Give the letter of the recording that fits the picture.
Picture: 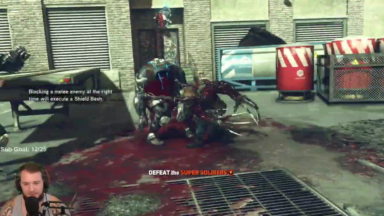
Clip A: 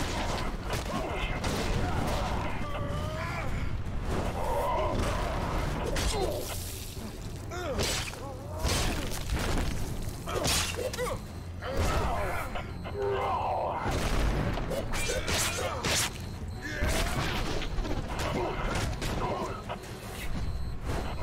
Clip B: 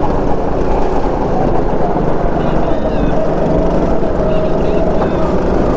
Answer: A